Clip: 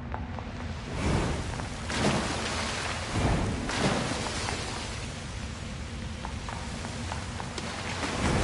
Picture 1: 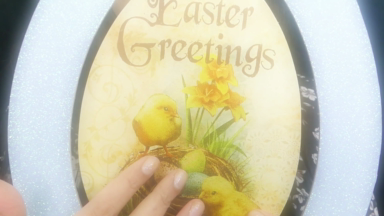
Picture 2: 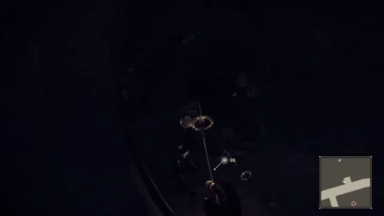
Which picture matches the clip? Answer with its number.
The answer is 2